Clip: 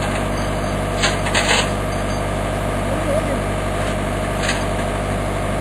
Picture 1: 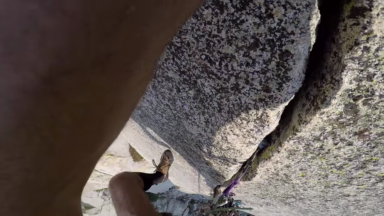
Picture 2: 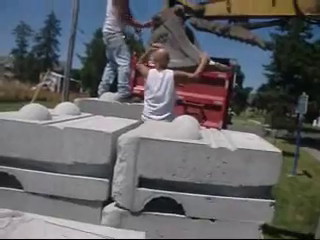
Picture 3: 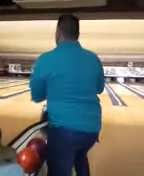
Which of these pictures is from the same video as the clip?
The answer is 2